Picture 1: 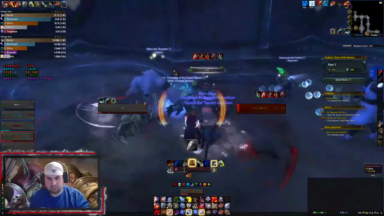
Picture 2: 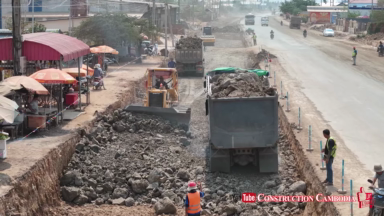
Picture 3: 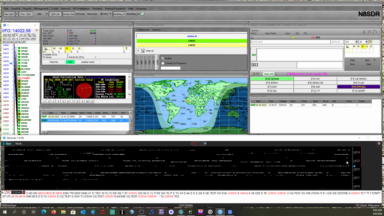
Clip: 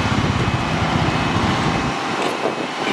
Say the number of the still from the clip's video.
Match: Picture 2